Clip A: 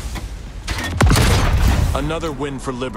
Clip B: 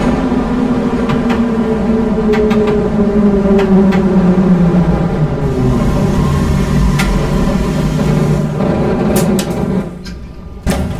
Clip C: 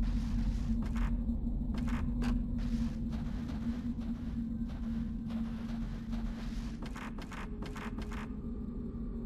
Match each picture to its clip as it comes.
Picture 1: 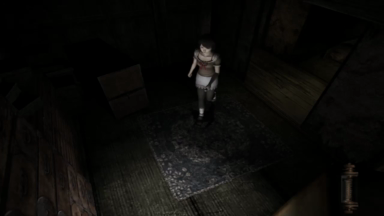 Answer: C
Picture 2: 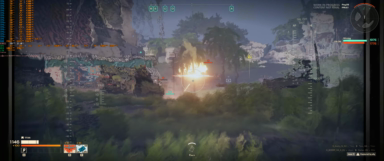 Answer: A